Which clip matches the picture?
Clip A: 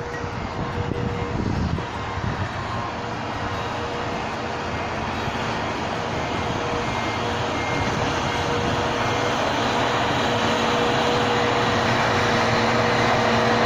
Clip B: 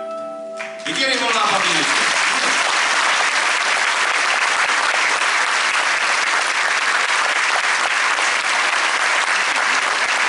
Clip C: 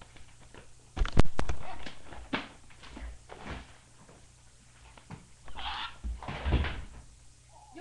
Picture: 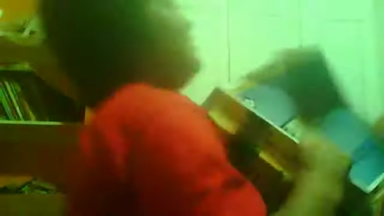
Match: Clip C